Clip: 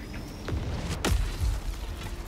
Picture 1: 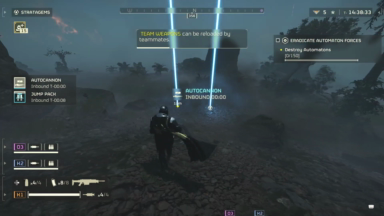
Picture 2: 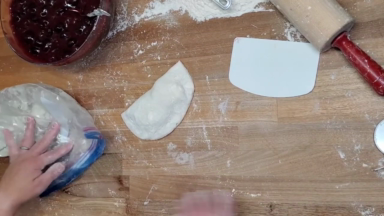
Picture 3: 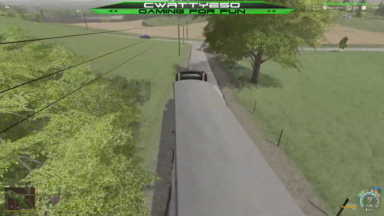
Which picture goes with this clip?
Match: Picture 1